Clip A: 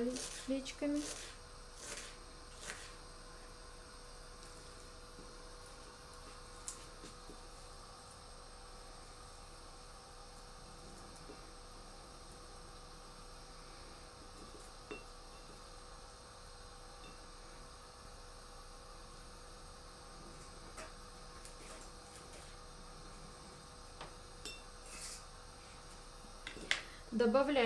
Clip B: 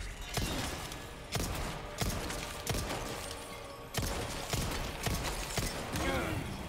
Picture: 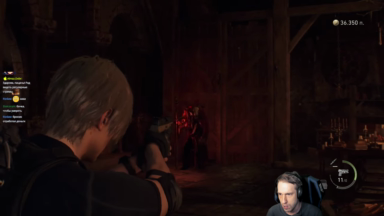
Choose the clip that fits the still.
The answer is B